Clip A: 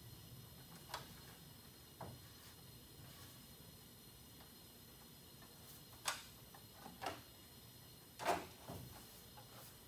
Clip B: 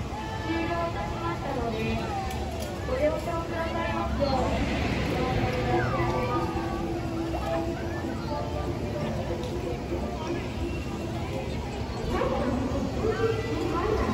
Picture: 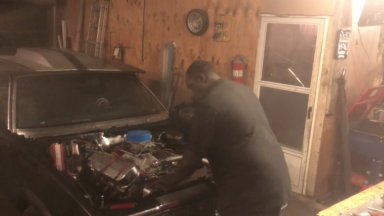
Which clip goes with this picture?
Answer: A